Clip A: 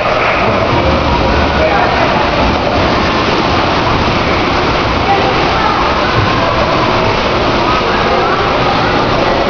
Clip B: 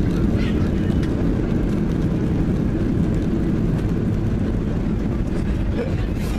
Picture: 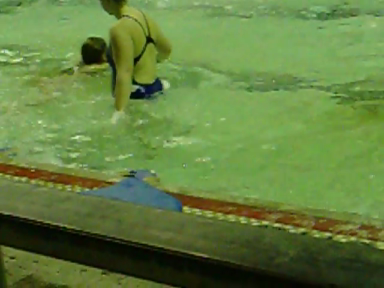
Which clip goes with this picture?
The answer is A